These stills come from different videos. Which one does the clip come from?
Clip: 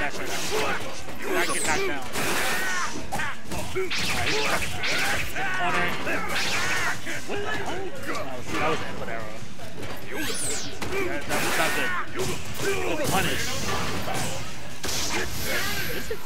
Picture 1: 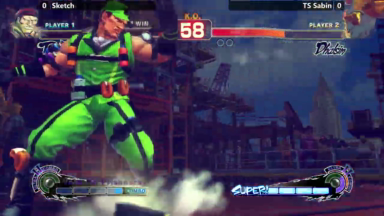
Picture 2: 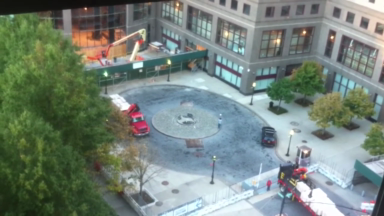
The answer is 1